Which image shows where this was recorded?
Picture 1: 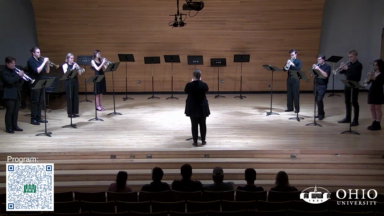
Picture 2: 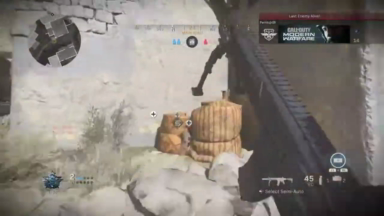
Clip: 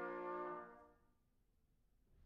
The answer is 1